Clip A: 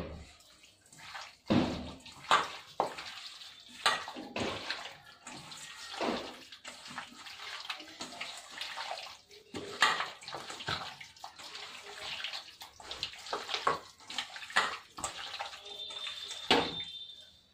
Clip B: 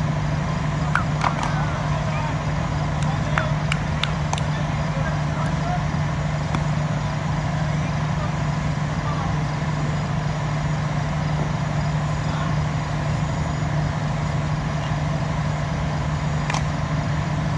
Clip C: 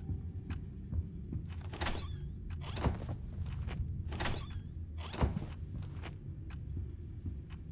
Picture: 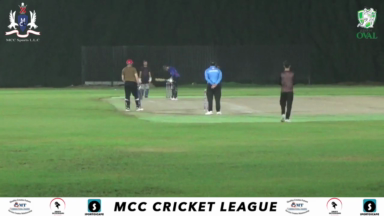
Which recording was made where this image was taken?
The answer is B